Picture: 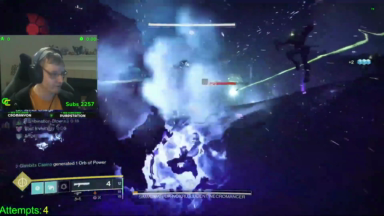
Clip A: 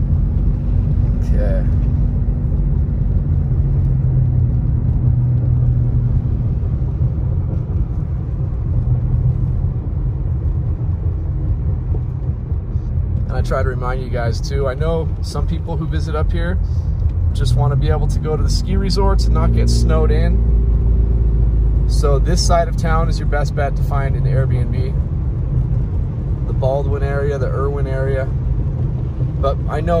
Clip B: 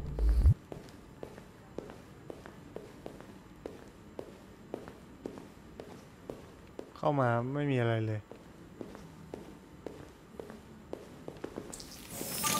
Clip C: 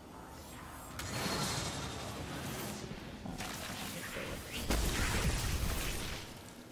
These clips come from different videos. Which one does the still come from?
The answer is C